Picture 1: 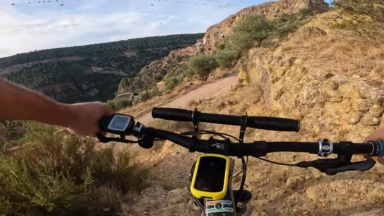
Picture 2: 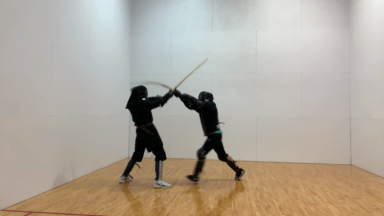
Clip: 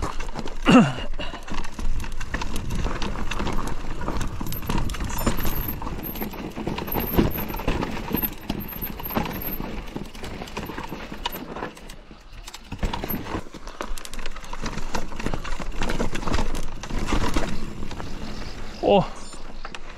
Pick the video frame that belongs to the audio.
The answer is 1